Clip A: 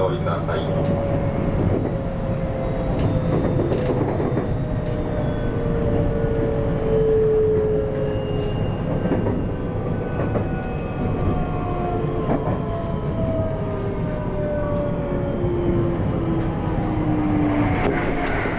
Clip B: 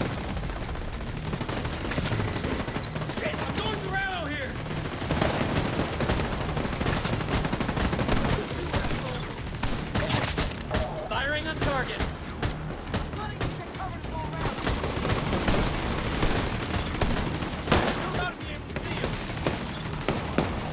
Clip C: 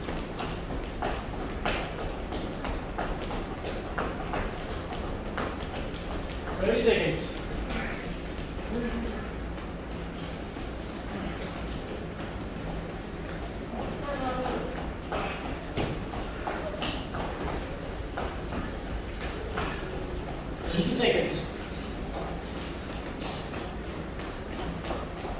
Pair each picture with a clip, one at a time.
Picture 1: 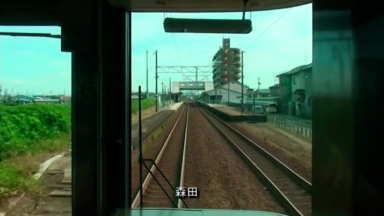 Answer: A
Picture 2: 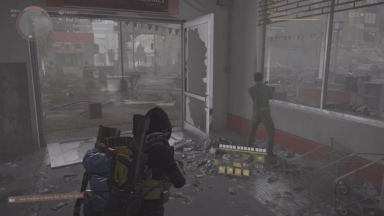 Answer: B